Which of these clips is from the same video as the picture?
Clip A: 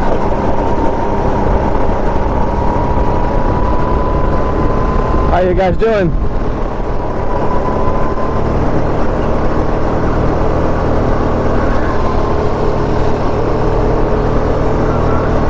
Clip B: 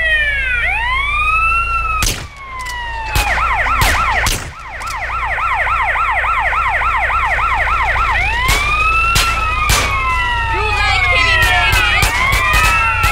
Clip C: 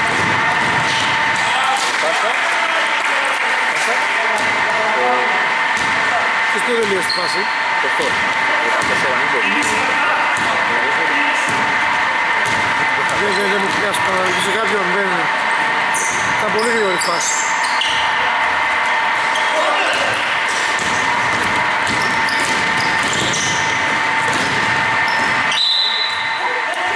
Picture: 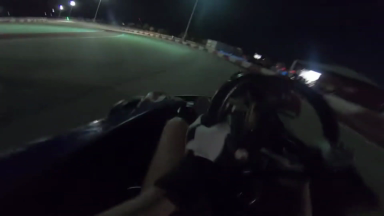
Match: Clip A